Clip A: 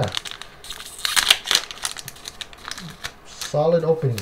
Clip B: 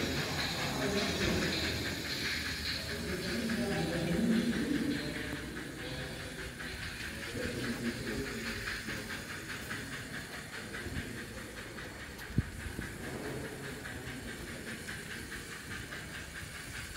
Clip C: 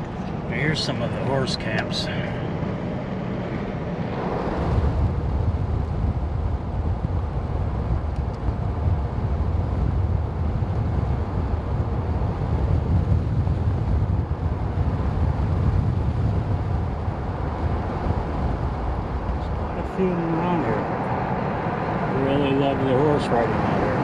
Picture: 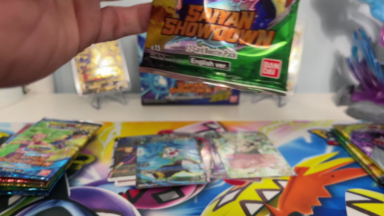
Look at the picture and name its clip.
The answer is A